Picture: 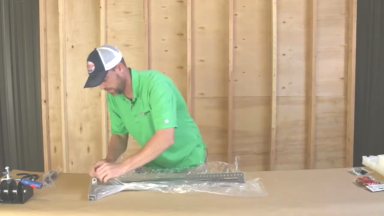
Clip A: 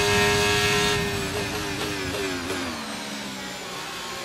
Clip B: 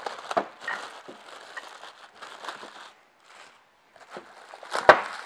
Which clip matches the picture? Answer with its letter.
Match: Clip B